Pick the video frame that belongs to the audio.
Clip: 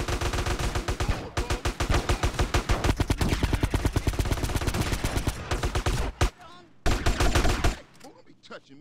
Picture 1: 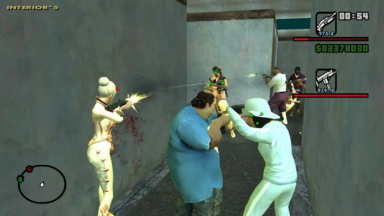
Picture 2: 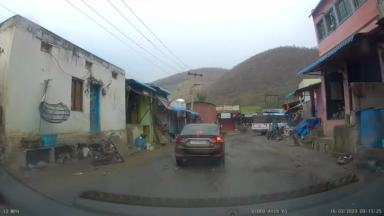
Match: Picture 1